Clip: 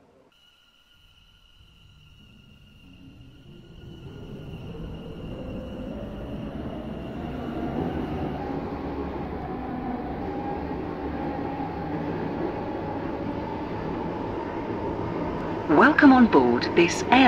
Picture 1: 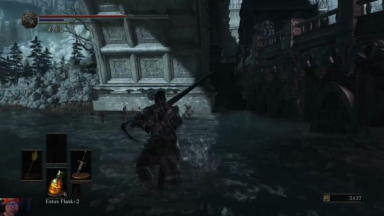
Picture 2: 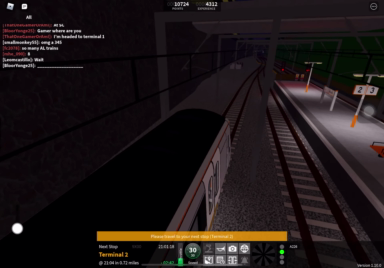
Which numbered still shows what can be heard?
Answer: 2